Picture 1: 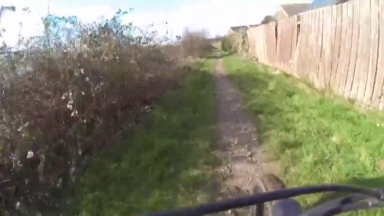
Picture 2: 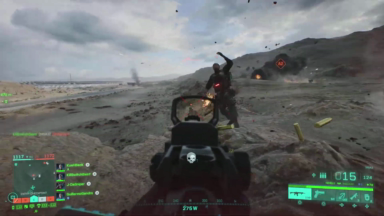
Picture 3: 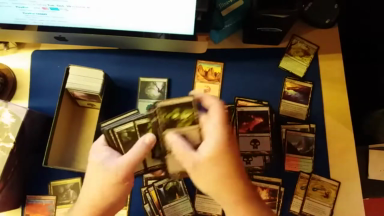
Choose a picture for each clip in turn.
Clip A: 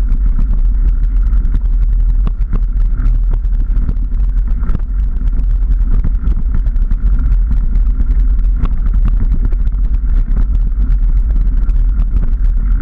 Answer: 1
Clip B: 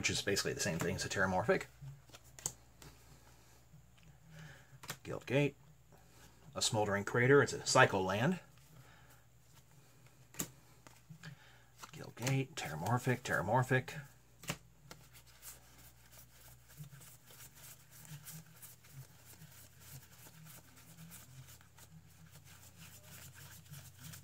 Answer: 3